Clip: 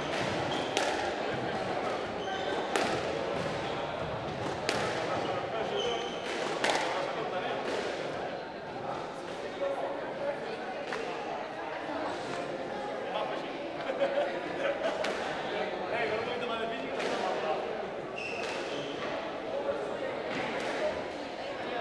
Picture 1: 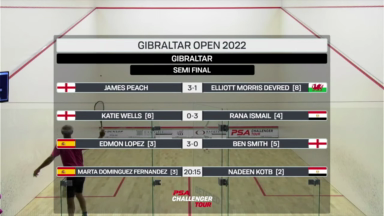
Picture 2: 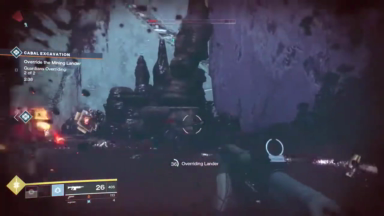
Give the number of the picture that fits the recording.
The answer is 1